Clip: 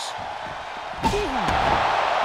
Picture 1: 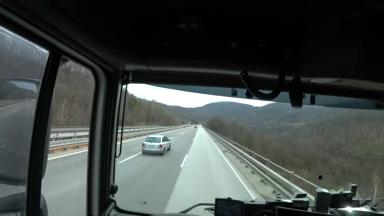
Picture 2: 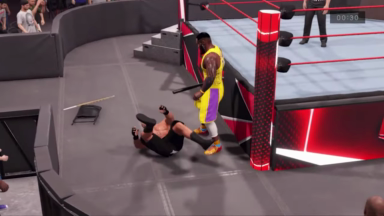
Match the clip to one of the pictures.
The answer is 2